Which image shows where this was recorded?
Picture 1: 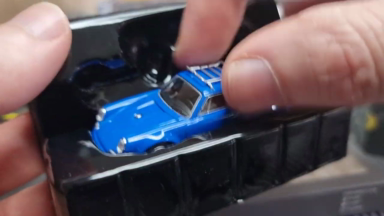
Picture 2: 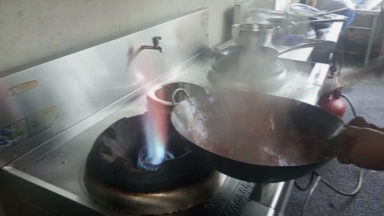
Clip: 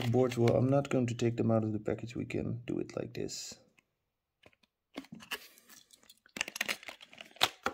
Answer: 1